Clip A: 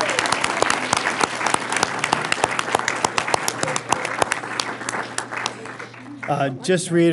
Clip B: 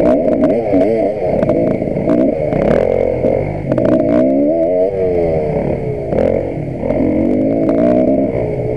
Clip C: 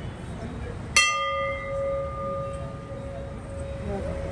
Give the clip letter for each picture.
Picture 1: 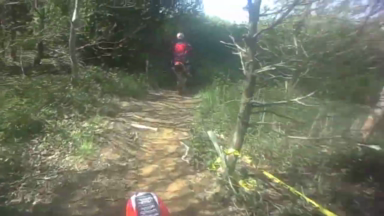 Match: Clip B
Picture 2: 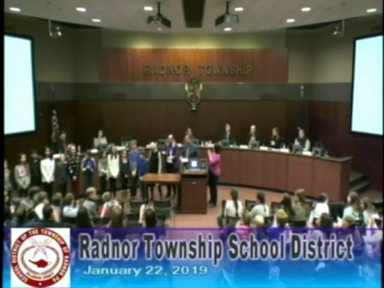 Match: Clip A